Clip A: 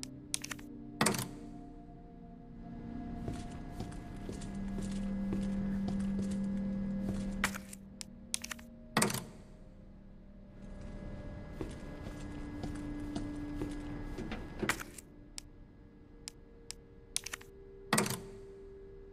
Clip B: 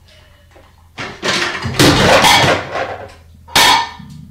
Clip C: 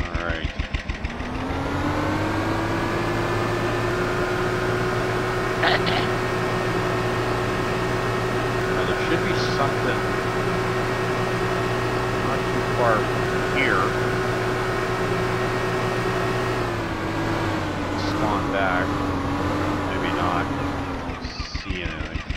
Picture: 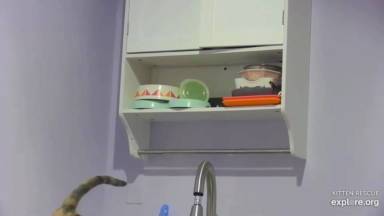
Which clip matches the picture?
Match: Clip B